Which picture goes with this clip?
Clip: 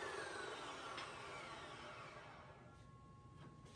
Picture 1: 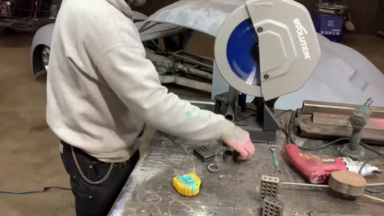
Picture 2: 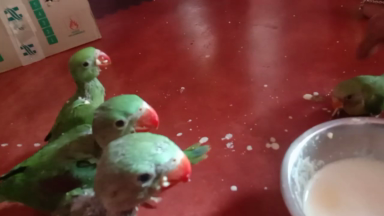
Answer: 1